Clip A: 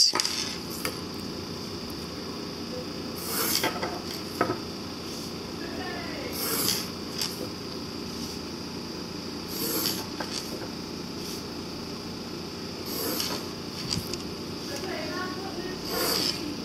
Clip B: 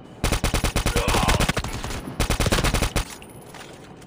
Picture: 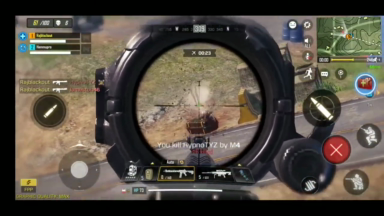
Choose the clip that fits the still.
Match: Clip B